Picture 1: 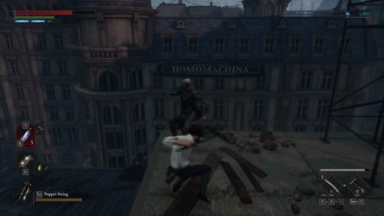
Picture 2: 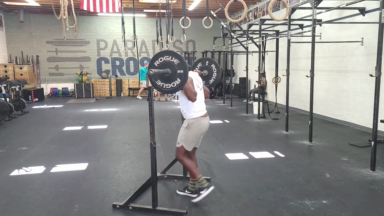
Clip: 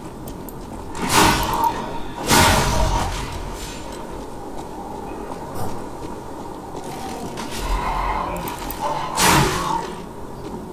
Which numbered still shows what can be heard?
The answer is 1